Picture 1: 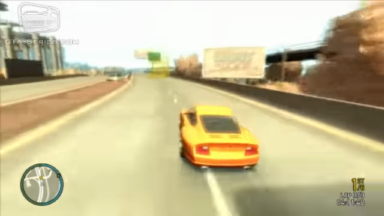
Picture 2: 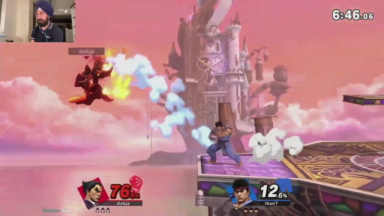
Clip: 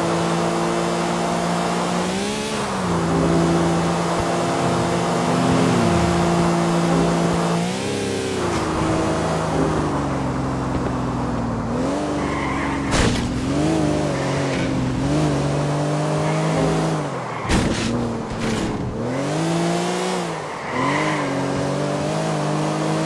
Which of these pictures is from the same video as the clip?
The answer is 1